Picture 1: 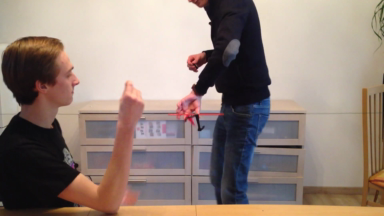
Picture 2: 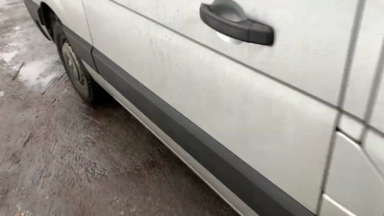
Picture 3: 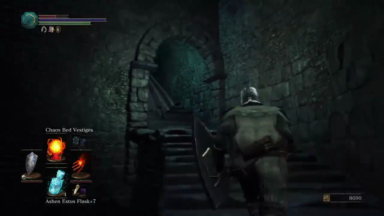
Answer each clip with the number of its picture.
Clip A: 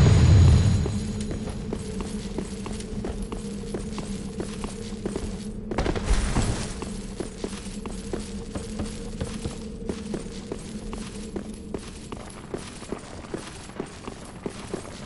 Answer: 3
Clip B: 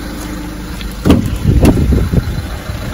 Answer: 2